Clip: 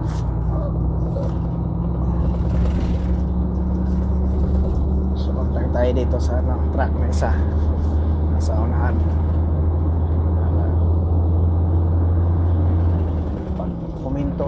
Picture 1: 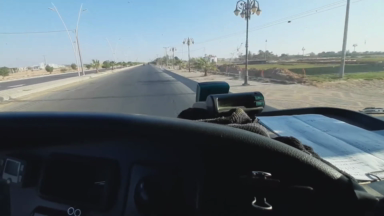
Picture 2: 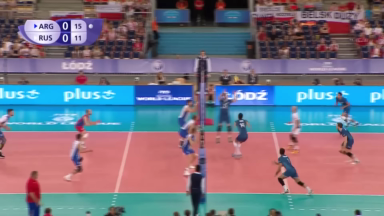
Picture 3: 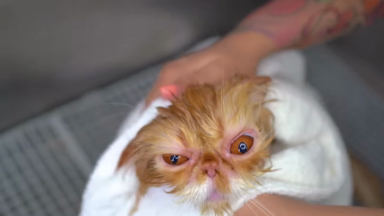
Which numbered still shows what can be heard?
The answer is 1